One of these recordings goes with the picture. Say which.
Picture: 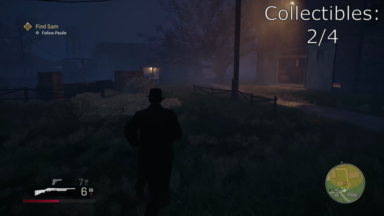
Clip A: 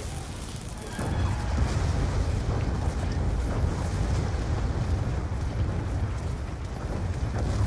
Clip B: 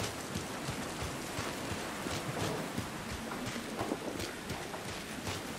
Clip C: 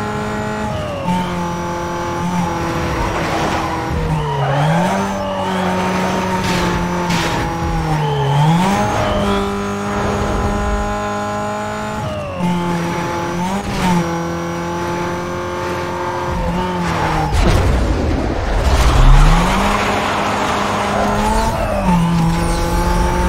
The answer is B